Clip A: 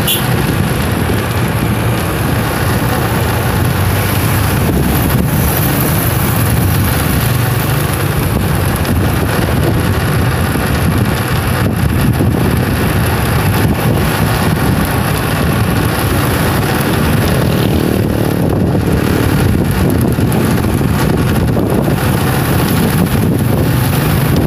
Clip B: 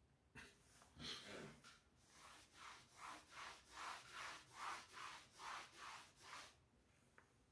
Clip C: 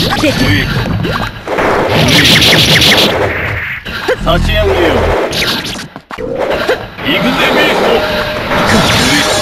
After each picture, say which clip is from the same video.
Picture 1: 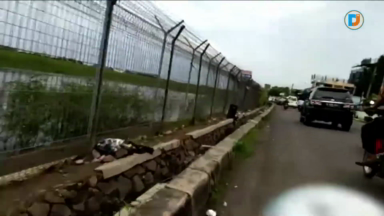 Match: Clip A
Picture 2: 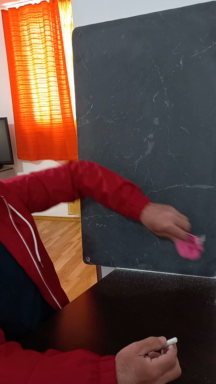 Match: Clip B